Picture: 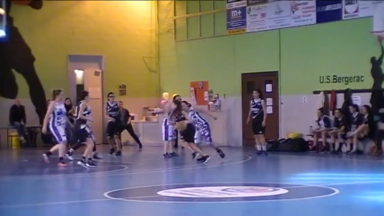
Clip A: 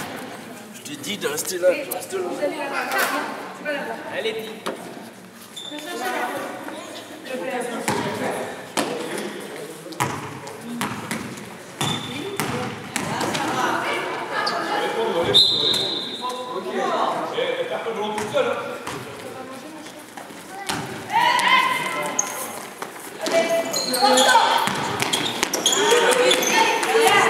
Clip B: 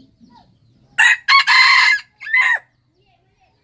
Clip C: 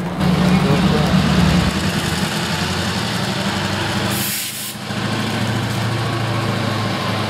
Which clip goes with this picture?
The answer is A